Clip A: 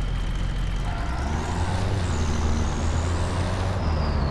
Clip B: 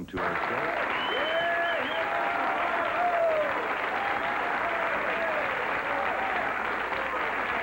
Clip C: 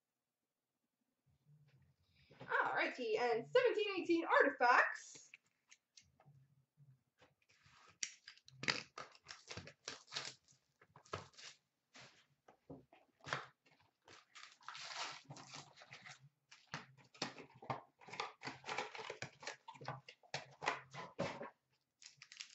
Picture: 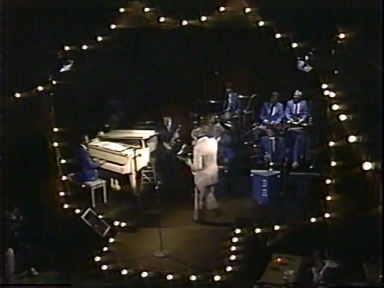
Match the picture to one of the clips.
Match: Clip B